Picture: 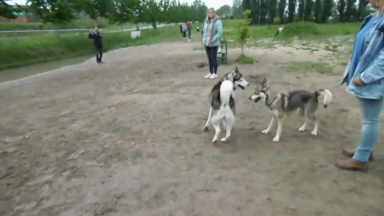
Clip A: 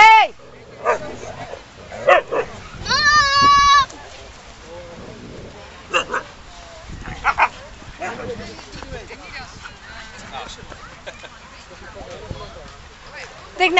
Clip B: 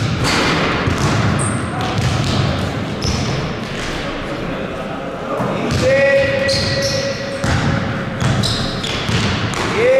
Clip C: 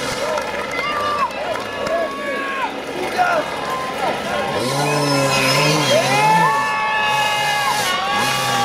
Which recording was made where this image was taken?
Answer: A